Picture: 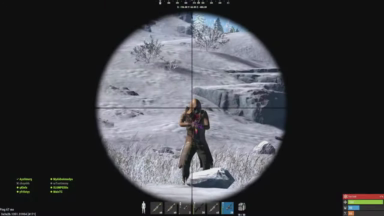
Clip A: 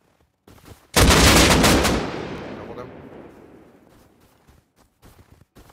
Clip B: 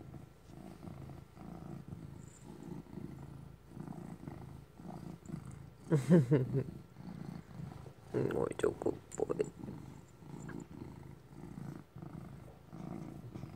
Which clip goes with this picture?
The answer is A